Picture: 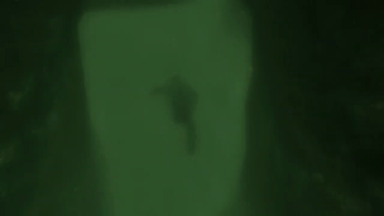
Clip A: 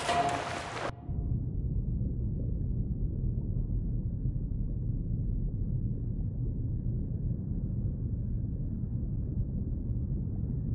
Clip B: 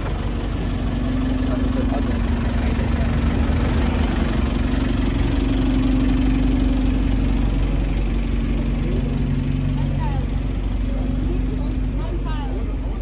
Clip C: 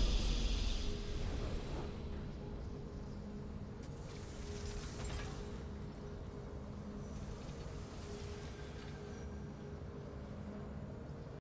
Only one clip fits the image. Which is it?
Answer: A